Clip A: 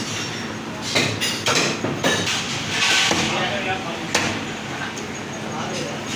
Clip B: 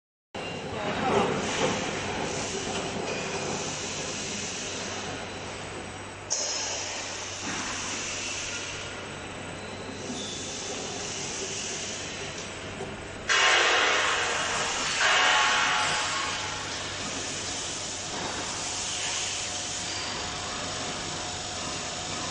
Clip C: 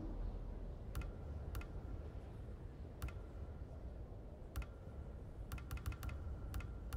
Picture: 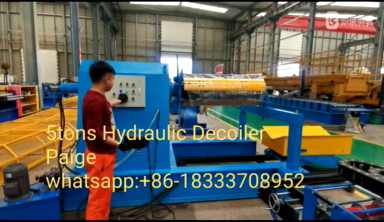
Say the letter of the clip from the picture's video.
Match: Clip B